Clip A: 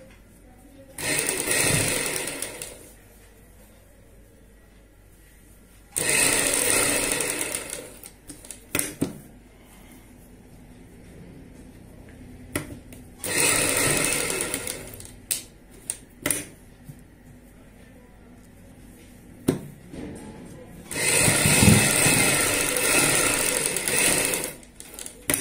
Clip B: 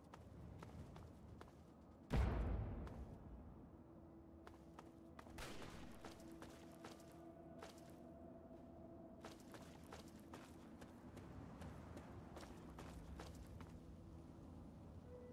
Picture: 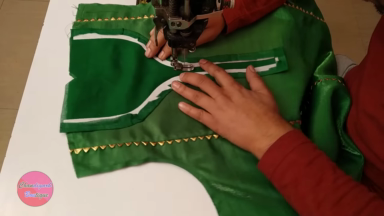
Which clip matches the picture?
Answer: A